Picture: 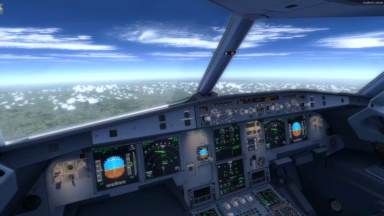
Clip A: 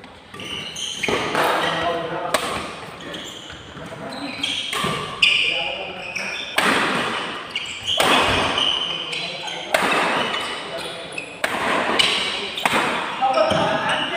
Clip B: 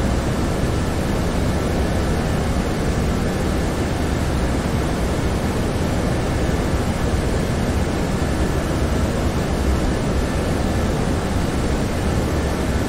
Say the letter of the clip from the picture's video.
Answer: B